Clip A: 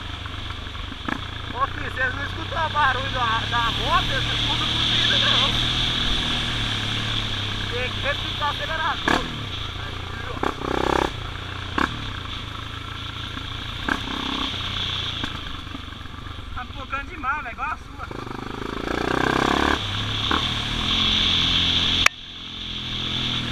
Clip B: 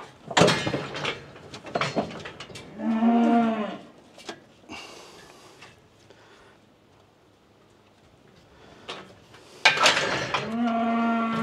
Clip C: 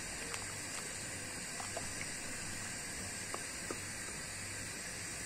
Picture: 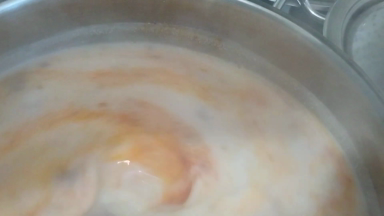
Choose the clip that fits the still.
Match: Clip C